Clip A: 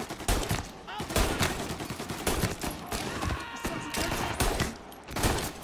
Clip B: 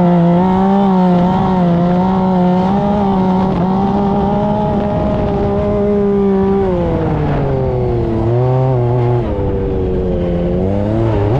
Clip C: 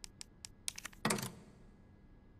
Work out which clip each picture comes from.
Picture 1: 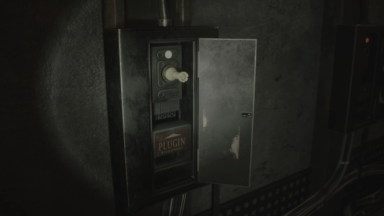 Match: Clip C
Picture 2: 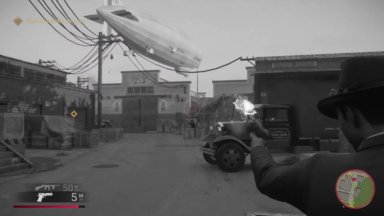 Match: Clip A